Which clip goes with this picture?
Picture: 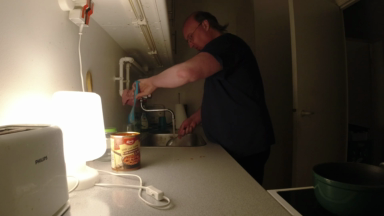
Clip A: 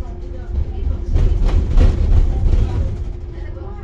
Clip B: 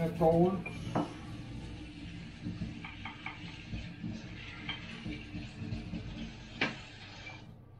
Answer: B